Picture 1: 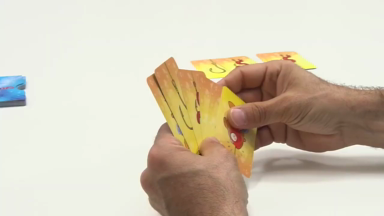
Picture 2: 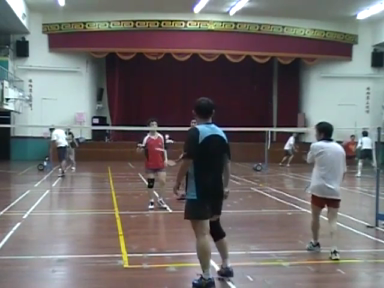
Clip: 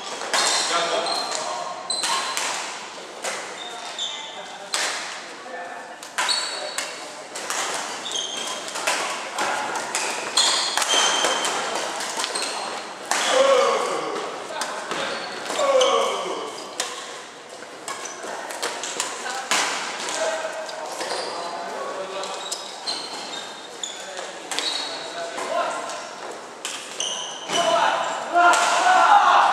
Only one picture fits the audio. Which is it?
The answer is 2